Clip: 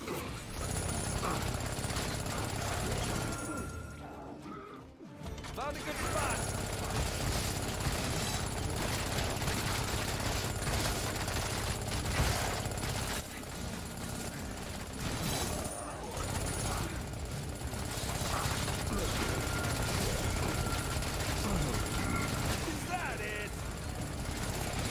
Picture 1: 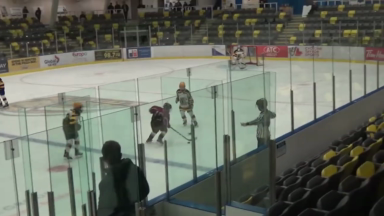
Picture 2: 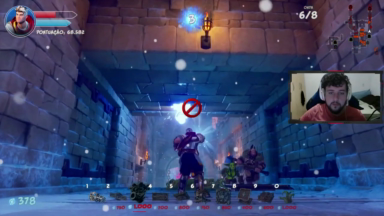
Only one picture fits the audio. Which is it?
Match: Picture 2